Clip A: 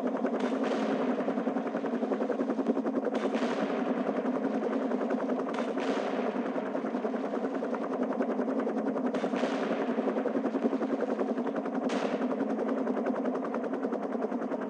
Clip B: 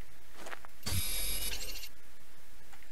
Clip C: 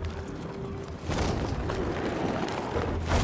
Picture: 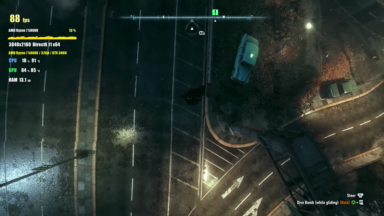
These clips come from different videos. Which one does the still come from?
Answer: C